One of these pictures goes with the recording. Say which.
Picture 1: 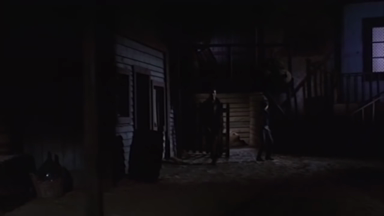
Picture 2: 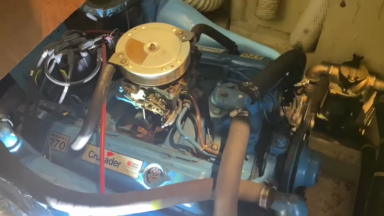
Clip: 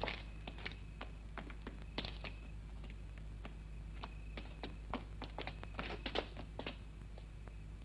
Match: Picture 1